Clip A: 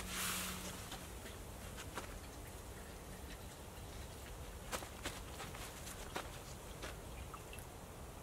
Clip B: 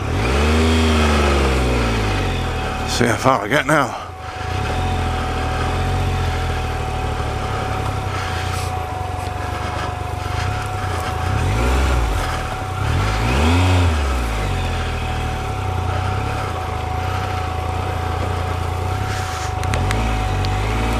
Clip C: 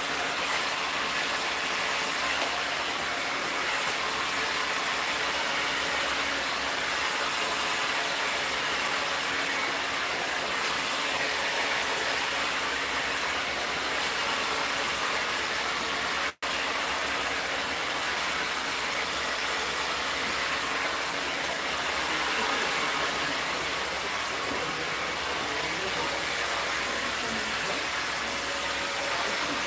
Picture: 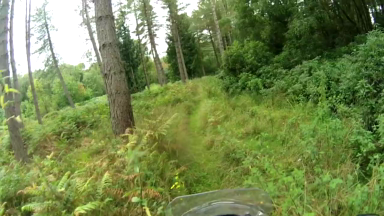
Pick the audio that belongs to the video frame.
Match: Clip B